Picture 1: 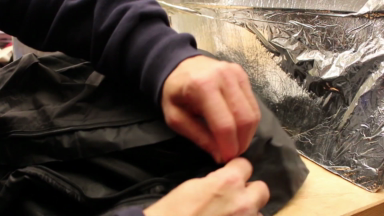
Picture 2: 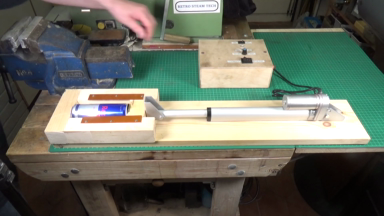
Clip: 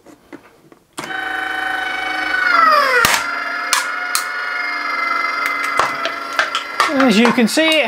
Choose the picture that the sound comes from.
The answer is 2